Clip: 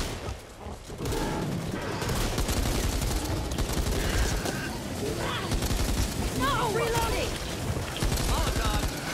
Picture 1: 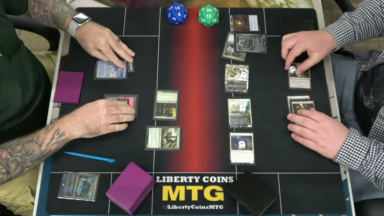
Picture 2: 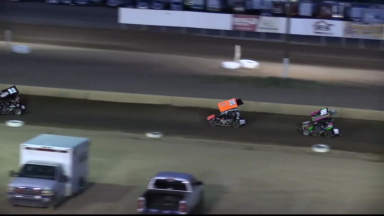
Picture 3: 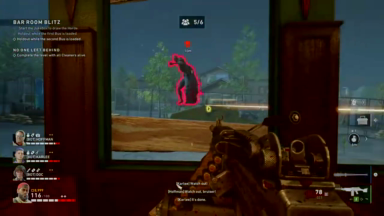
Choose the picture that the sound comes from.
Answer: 3